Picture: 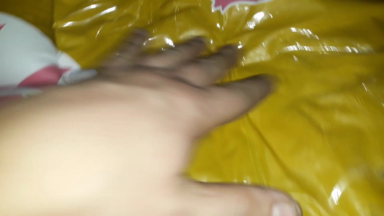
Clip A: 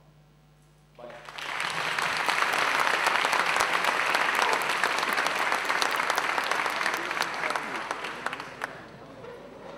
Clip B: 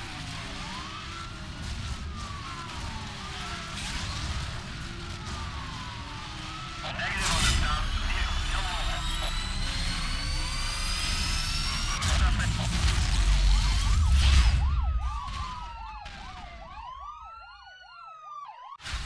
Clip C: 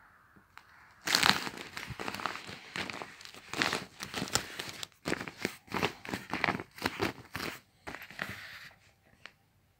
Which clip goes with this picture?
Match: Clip C